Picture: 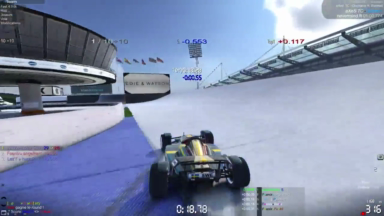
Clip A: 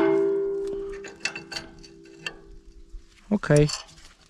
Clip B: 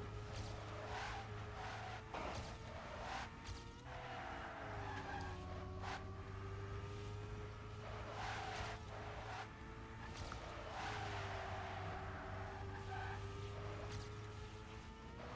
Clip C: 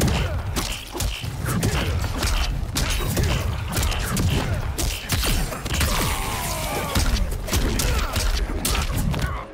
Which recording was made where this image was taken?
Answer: B